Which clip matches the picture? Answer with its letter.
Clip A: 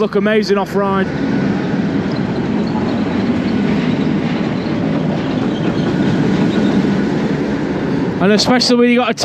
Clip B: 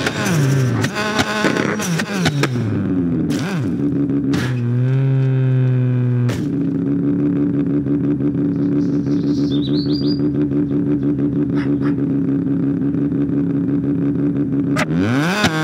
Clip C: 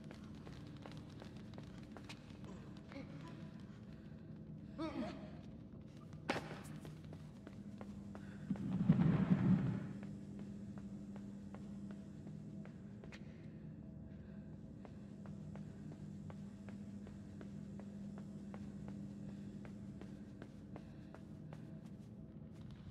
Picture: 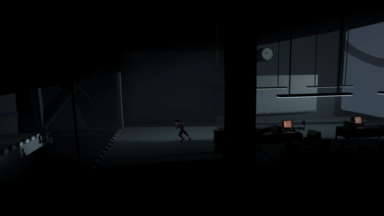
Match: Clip C